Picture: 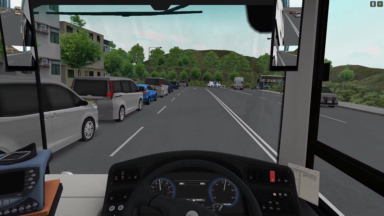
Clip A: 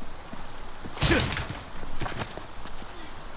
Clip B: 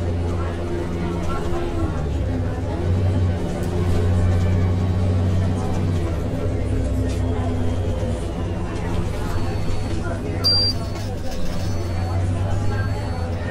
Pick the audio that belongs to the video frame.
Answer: B